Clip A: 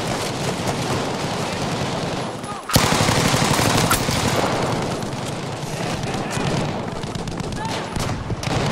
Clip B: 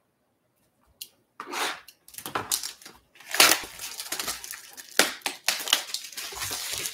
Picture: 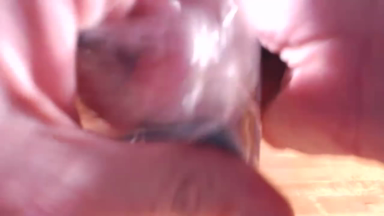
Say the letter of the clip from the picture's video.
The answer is B